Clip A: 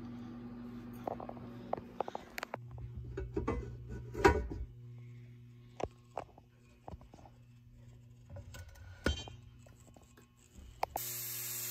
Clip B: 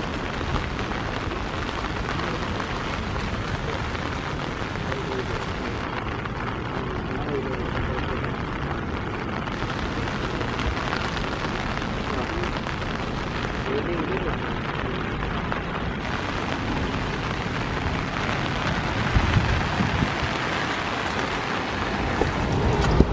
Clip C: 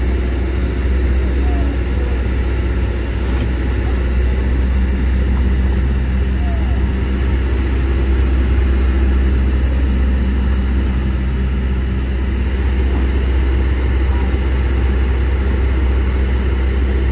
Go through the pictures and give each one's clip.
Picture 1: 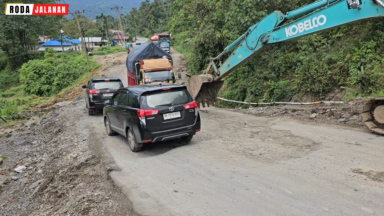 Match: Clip C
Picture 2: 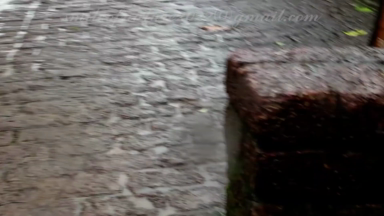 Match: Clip B